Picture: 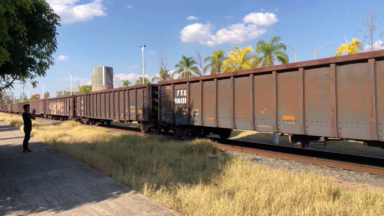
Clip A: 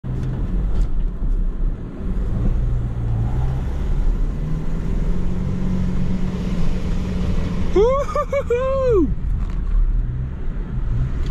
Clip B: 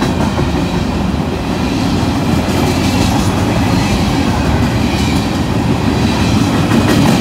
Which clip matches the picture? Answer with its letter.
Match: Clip B